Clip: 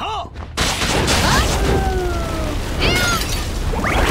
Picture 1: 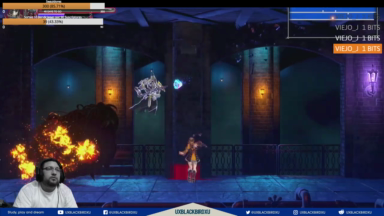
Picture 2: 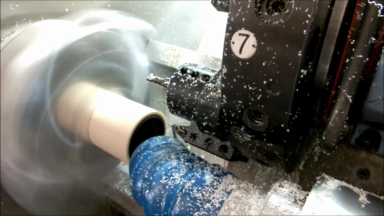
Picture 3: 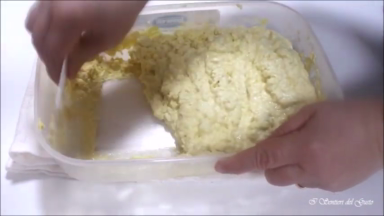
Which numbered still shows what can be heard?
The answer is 1